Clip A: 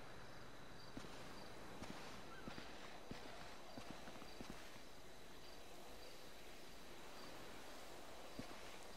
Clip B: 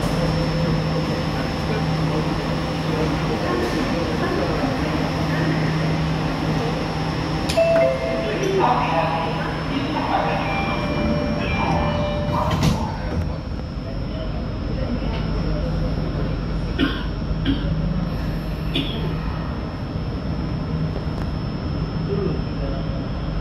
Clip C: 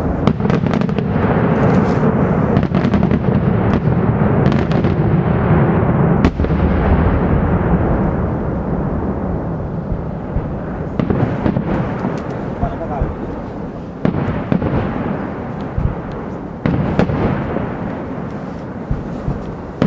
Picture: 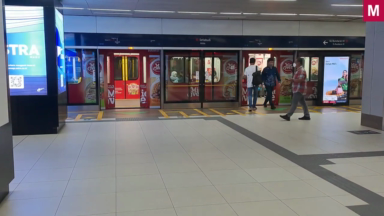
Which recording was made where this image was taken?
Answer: B